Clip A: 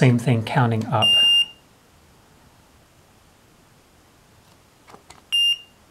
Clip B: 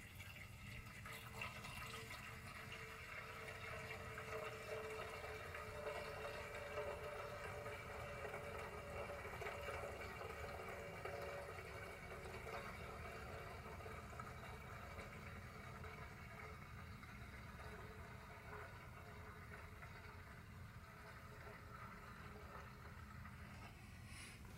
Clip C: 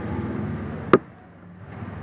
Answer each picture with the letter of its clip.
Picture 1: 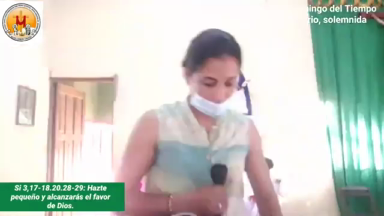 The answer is C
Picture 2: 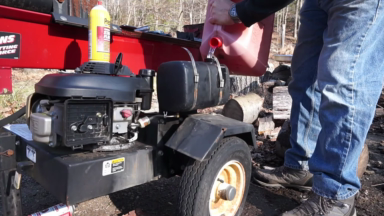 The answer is B